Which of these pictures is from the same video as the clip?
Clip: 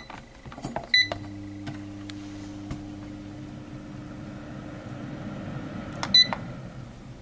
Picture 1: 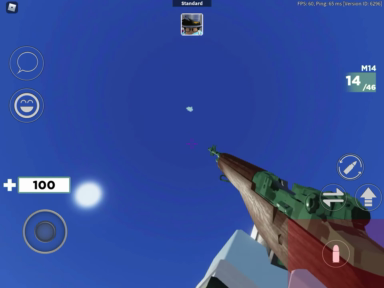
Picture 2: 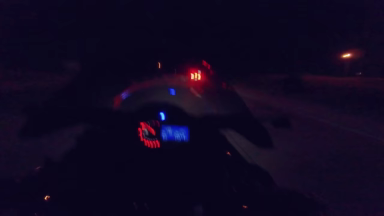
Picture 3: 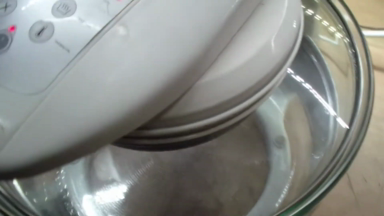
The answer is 3